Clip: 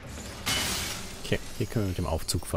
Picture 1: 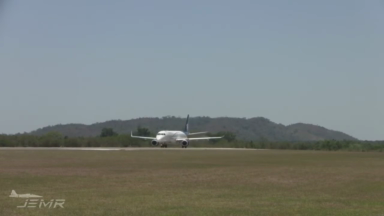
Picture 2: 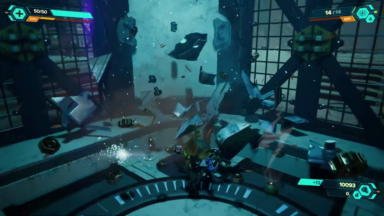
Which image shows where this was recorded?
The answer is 2